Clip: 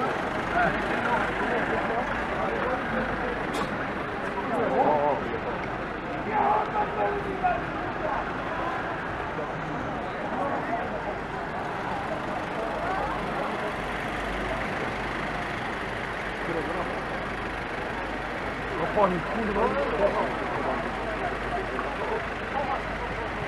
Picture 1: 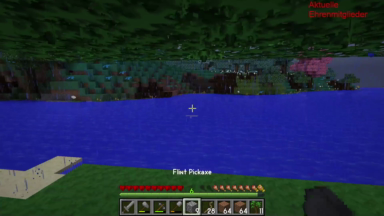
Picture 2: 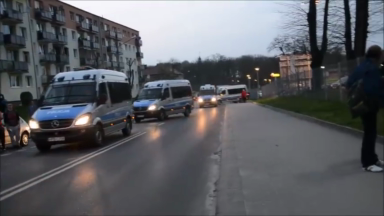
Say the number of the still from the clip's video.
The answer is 2